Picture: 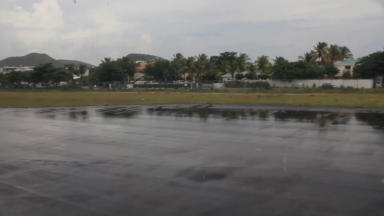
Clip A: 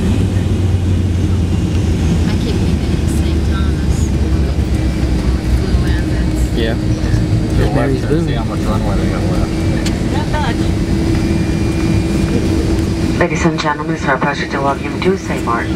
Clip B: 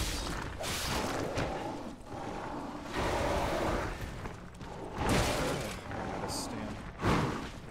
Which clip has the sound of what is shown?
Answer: A